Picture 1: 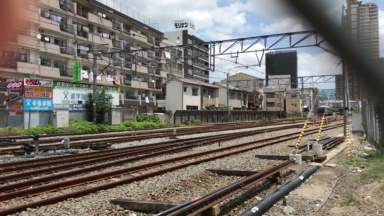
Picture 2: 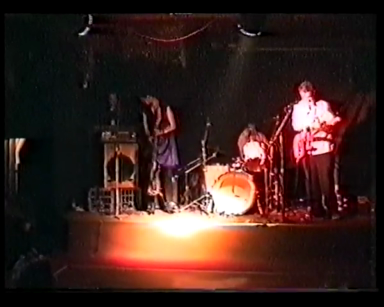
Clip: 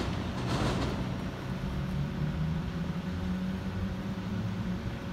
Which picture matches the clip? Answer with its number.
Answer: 1